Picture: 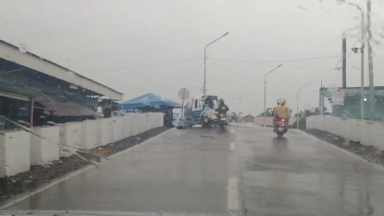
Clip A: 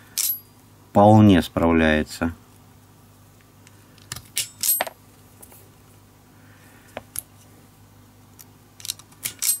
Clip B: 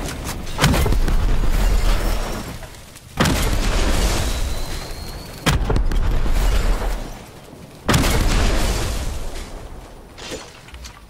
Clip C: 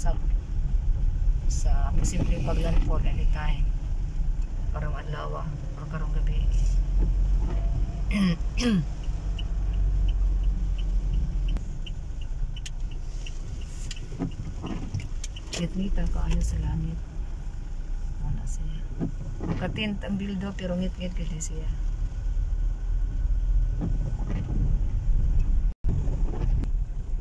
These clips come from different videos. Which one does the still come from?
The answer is C